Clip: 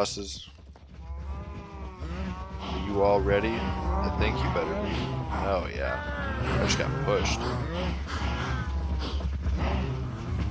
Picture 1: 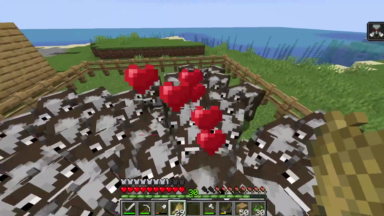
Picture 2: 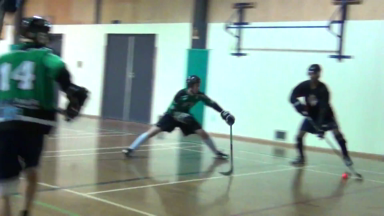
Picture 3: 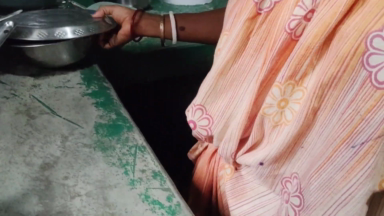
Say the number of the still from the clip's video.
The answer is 1